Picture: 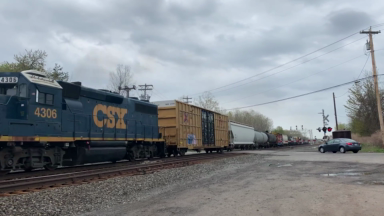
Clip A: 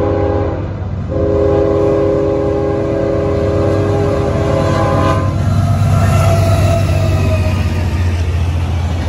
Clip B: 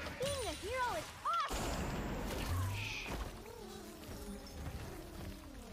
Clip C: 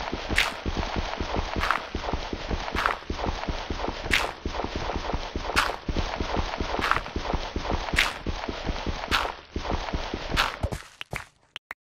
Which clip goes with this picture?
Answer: A